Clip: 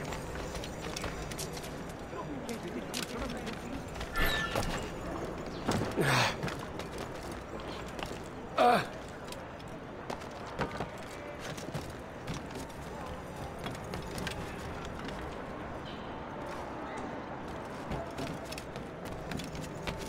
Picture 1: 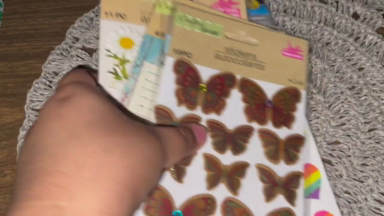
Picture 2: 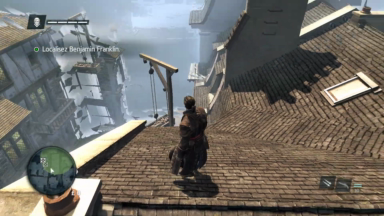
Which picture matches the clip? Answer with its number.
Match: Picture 2